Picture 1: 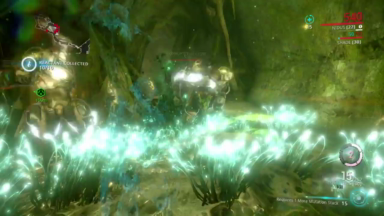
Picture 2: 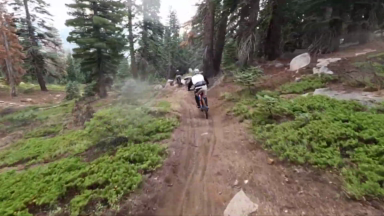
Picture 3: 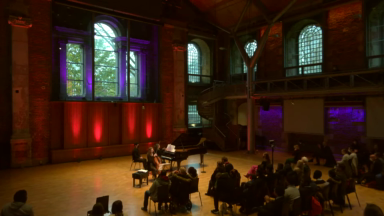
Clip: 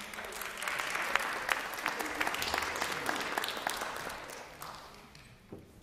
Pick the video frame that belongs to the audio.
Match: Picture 3